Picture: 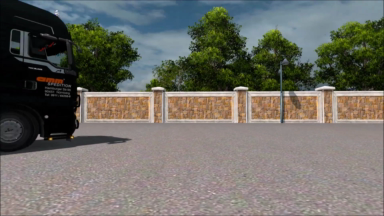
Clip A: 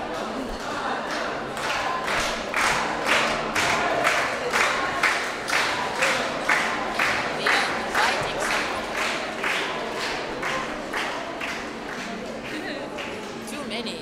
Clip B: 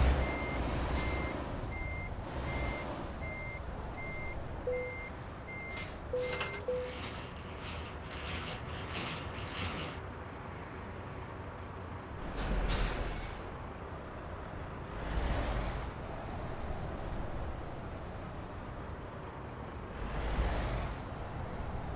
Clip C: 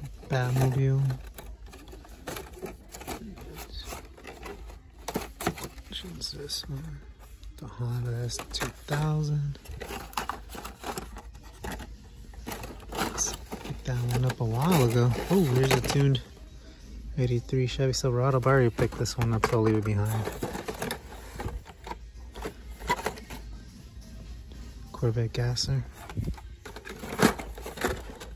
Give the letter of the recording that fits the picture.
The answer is B